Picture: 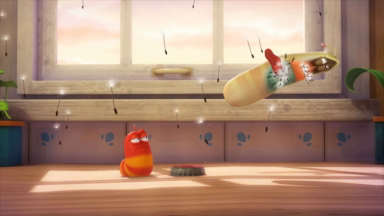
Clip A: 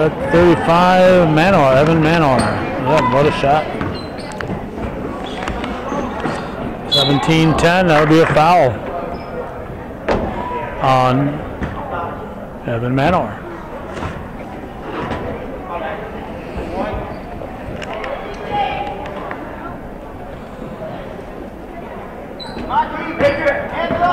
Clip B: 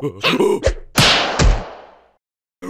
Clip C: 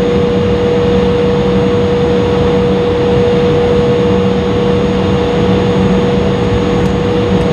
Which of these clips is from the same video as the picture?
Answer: B